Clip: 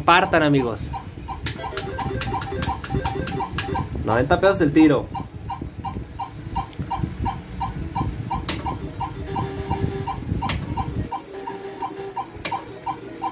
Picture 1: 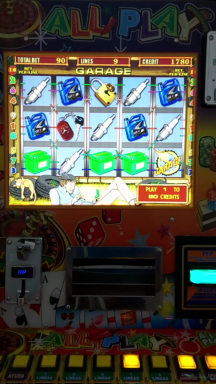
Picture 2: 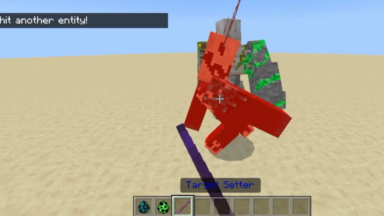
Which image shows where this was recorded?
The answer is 1